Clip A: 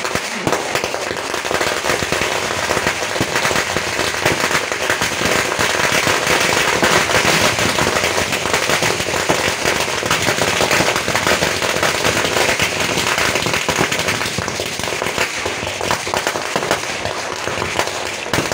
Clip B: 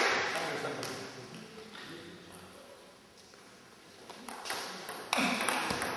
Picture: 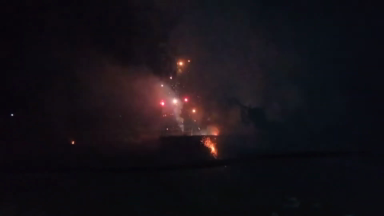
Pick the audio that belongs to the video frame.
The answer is A